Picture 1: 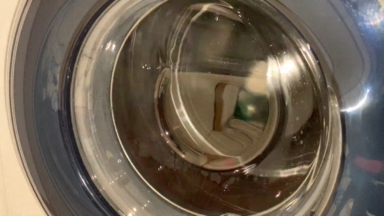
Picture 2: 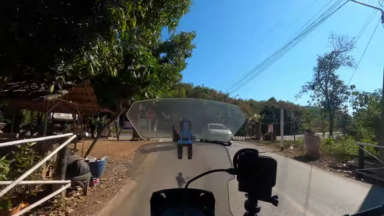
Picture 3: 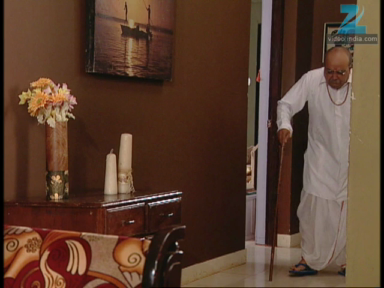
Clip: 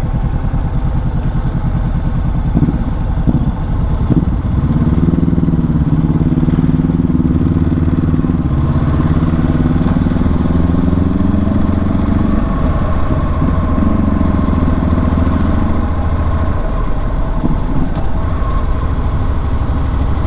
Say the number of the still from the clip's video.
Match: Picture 2